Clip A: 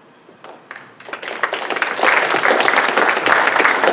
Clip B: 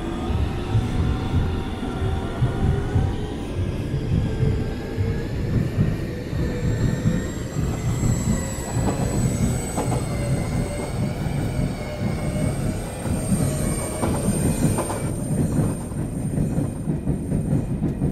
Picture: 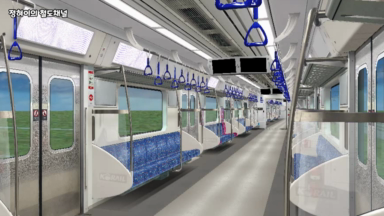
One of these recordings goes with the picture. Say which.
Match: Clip B